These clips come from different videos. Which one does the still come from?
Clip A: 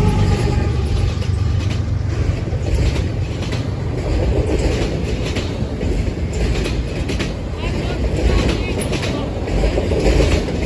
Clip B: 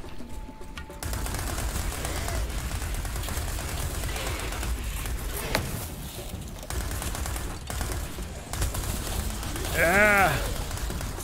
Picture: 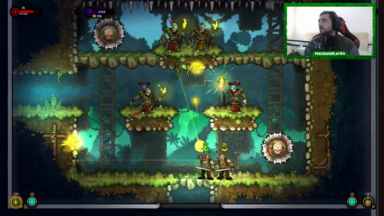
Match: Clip B